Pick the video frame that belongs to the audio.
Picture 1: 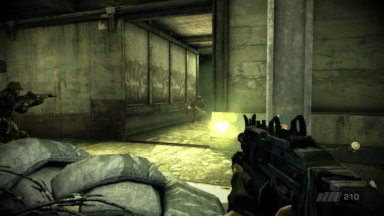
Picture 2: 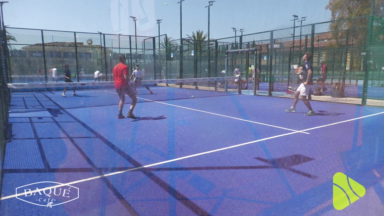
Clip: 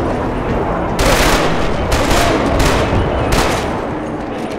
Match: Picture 1